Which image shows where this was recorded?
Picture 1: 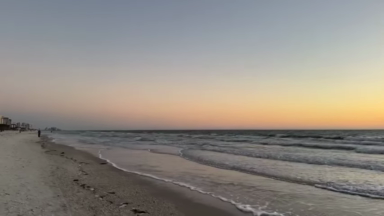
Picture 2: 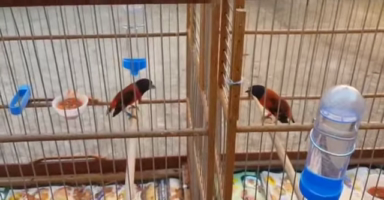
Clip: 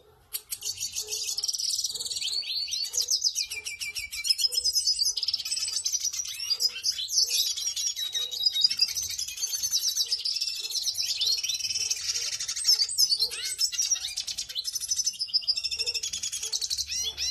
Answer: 2